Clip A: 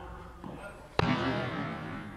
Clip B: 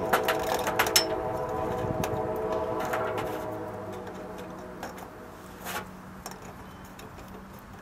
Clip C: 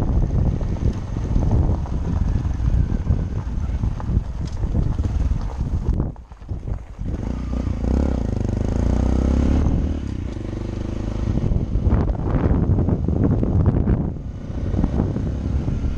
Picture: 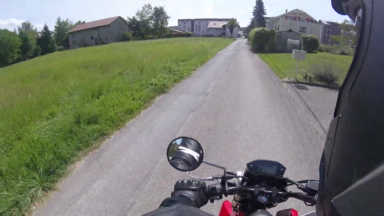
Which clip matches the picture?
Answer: C